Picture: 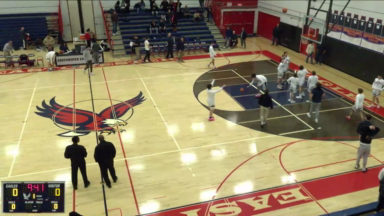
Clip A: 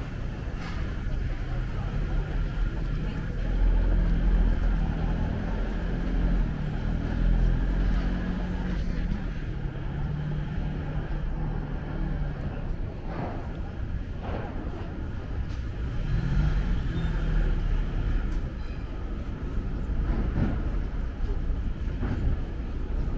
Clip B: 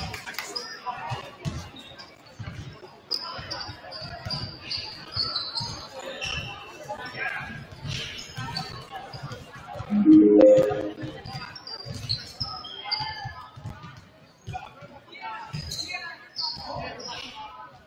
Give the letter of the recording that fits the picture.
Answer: B